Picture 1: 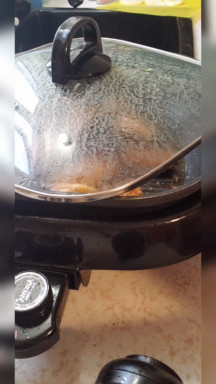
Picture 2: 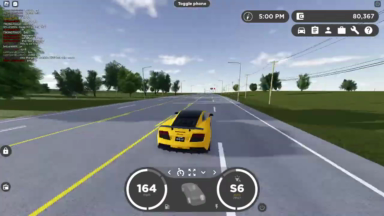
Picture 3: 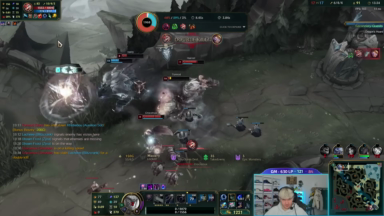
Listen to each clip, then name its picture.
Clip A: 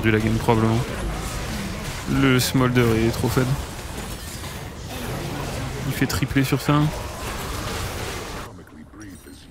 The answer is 3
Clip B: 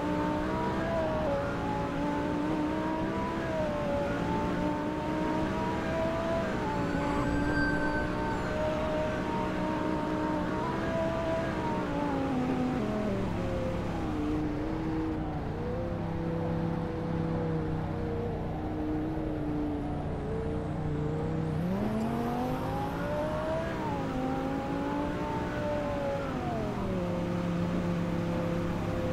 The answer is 2